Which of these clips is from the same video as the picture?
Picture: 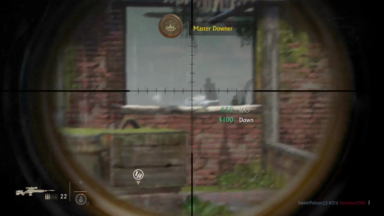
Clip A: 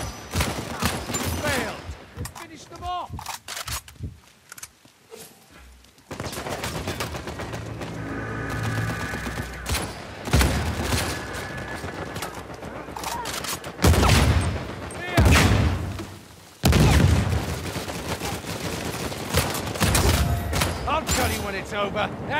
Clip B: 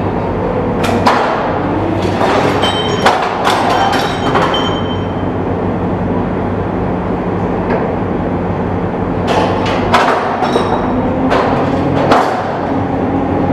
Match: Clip A